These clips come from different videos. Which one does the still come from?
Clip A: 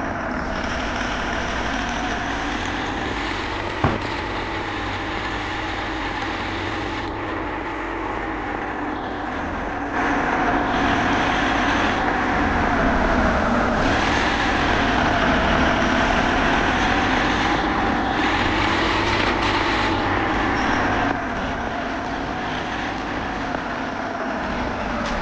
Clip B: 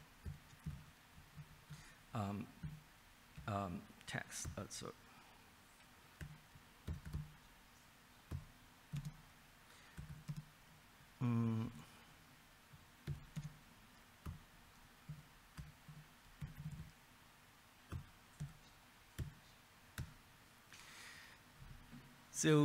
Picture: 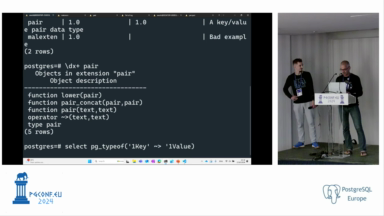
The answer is B